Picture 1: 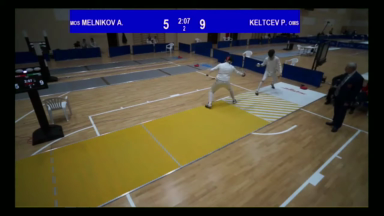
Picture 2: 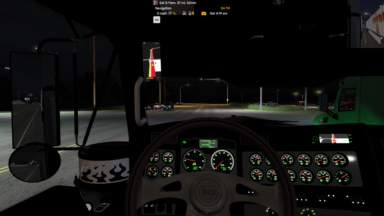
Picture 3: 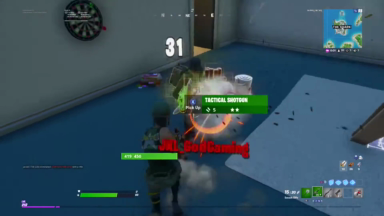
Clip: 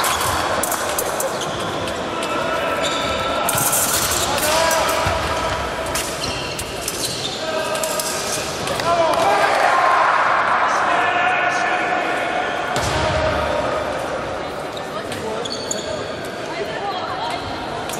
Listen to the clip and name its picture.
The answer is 1